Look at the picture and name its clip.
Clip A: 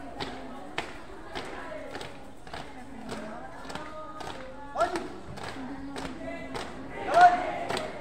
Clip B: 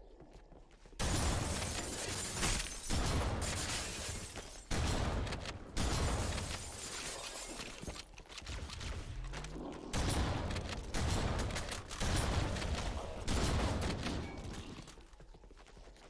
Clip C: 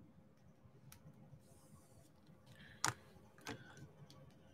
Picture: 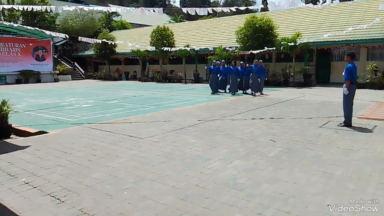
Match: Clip A